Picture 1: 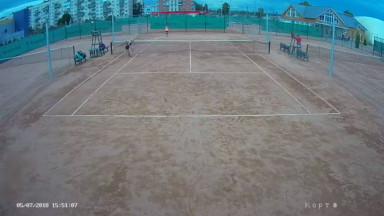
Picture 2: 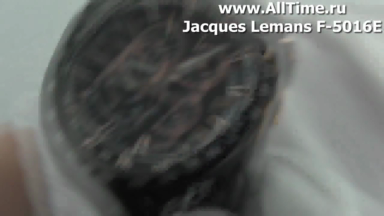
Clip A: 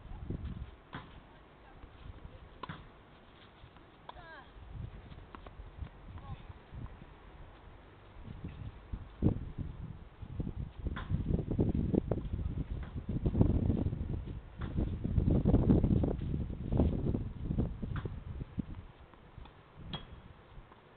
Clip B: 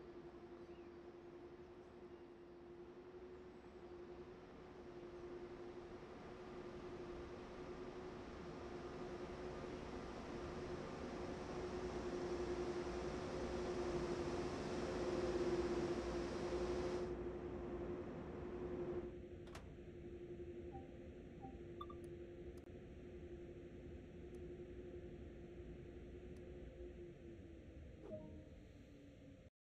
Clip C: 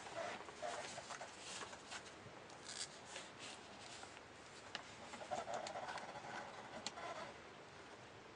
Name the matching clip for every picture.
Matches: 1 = A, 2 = C